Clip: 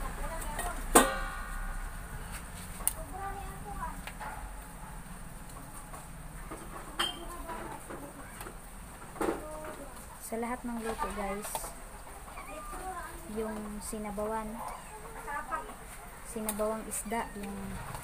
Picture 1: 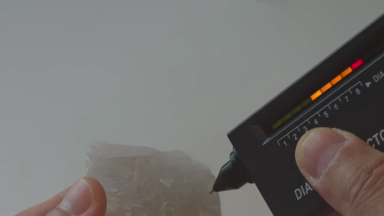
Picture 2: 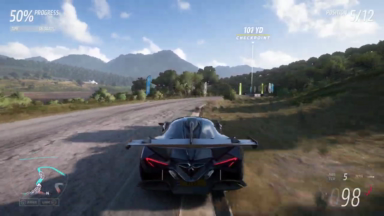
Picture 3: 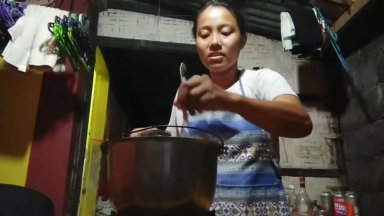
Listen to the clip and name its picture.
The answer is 3